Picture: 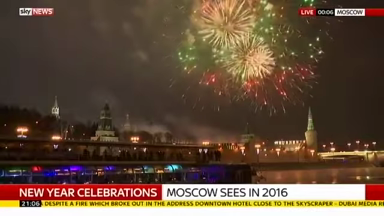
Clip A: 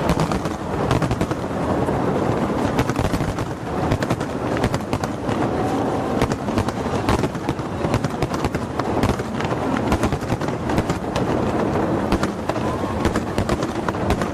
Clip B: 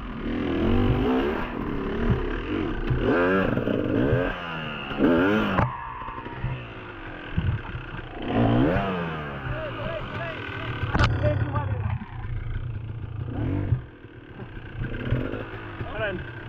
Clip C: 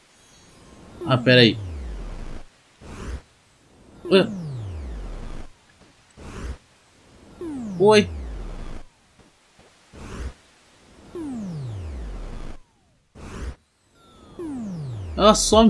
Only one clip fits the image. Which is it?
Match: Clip A